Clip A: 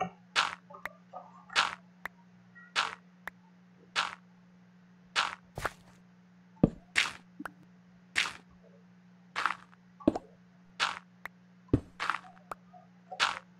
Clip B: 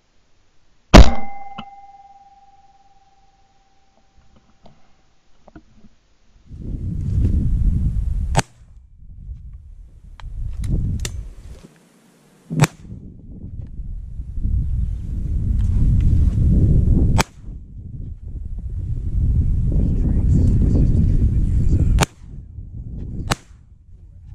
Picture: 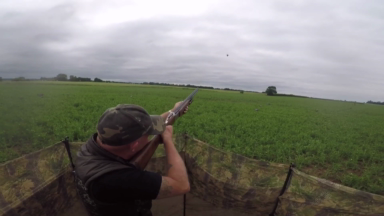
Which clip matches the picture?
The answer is B